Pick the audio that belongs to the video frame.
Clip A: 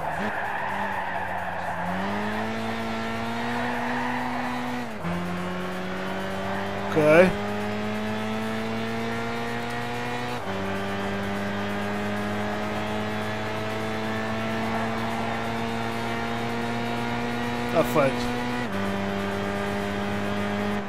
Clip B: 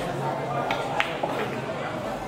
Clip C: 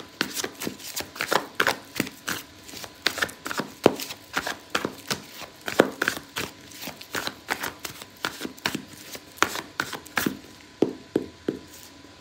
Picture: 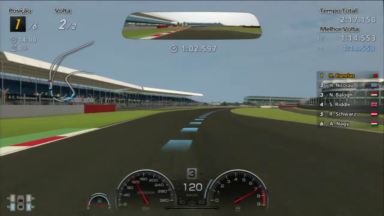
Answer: A